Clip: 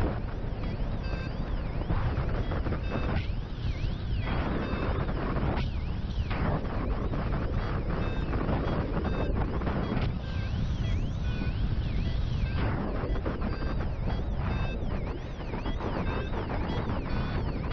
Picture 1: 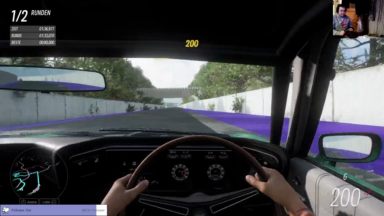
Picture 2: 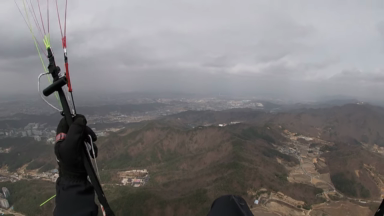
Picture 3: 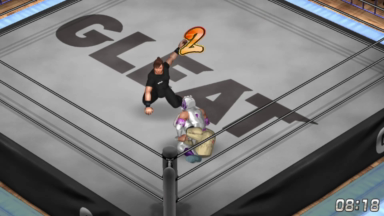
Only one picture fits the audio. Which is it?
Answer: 2